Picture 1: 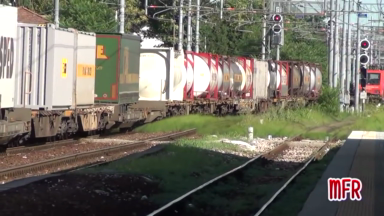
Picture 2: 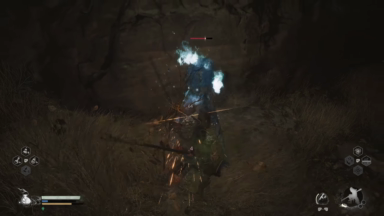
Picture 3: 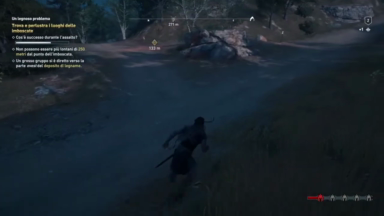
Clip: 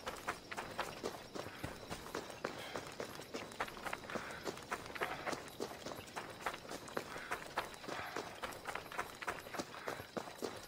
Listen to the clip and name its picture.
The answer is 3